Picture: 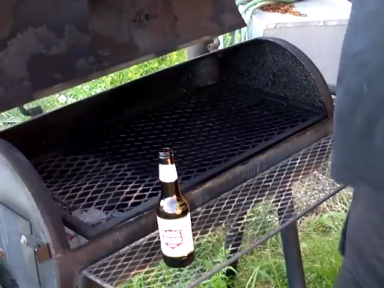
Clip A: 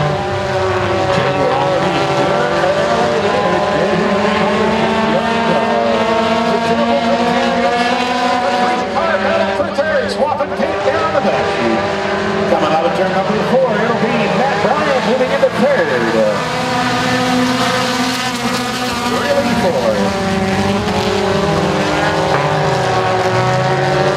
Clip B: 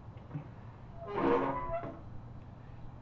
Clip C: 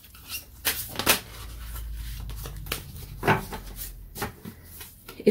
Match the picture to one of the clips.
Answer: B